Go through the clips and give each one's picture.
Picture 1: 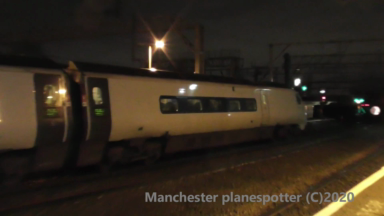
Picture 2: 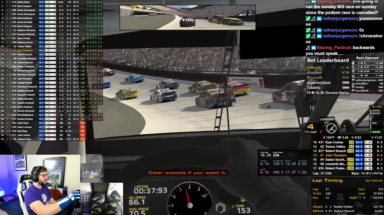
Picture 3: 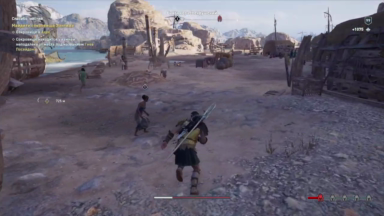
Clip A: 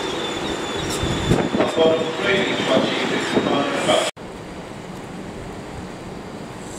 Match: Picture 1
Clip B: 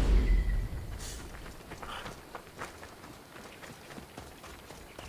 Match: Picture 3